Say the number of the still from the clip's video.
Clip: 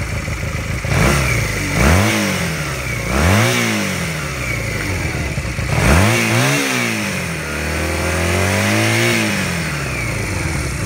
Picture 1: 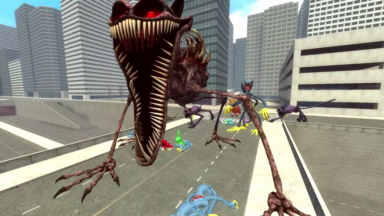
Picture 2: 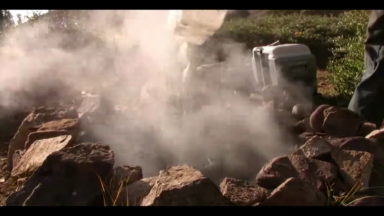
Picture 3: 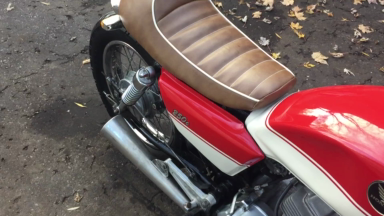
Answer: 3